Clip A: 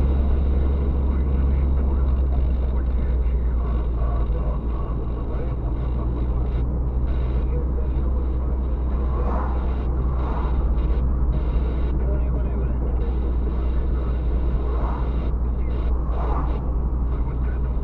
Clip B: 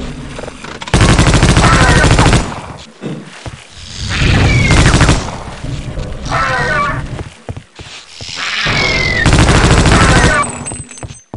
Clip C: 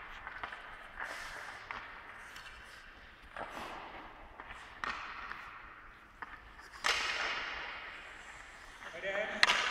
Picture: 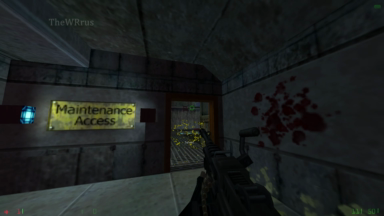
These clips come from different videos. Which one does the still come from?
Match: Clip B